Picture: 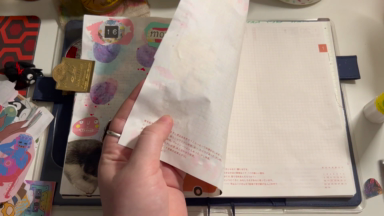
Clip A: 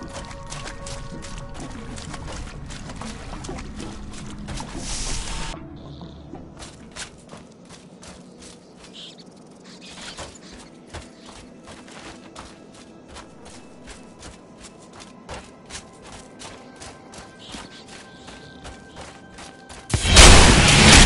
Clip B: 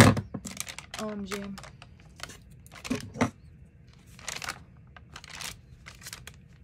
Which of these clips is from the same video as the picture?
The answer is B